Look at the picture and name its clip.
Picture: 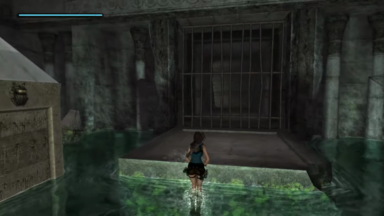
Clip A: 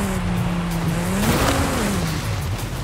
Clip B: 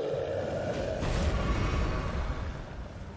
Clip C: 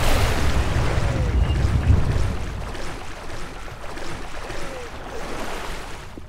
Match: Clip C